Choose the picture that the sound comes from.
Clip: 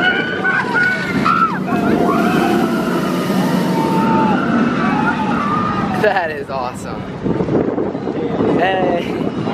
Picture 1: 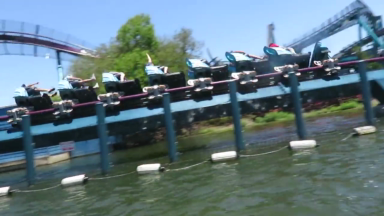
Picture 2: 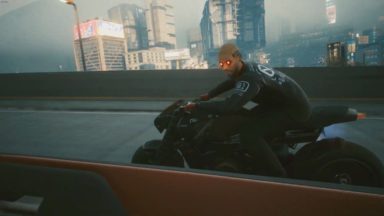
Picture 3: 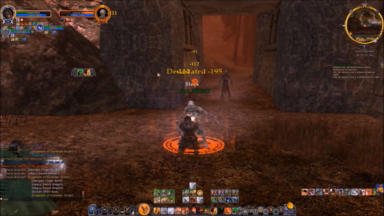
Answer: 1